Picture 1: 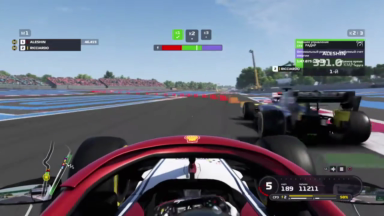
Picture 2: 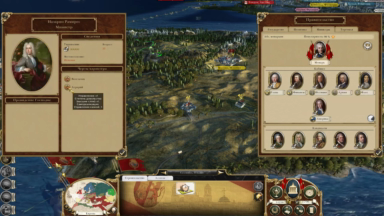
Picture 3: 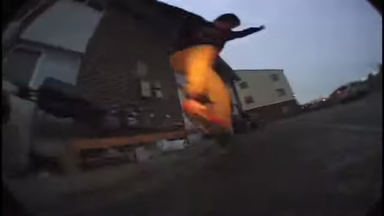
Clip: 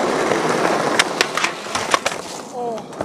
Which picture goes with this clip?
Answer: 3